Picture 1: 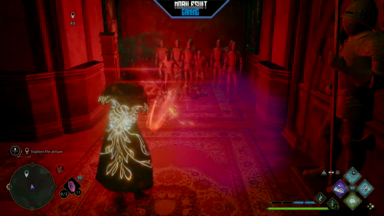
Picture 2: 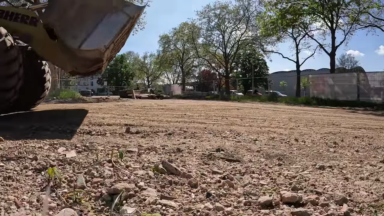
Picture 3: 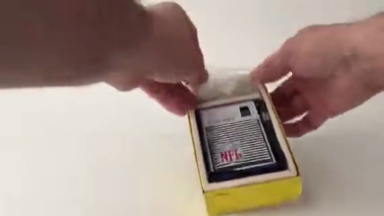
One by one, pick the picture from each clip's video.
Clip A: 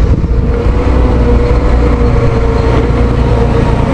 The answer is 2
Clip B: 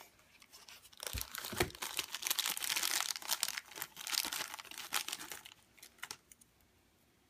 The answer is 3